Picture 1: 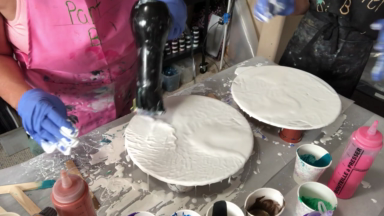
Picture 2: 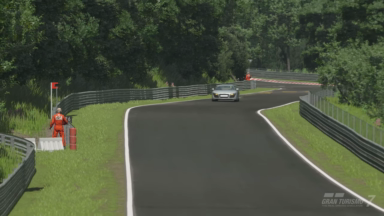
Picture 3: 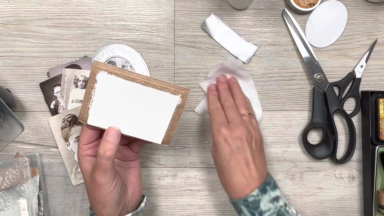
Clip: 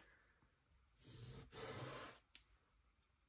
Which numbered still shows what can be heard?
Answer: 3